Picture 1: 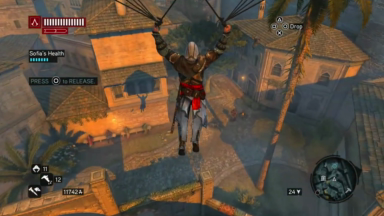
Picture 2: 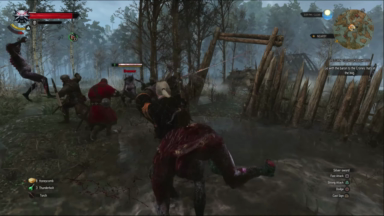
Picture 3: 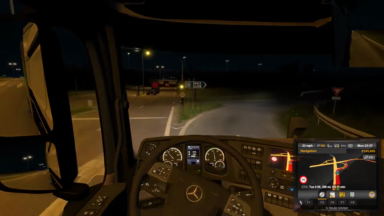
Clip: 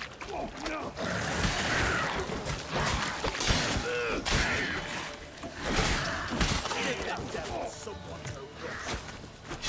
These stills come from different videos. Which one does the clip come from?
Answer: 2